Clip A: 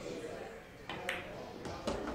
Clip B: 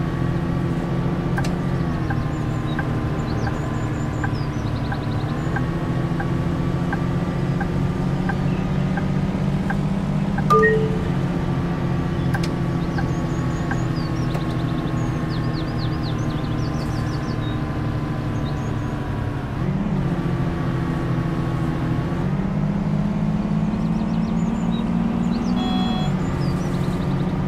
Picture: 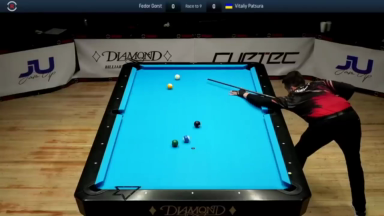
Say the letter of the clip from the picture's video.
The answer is A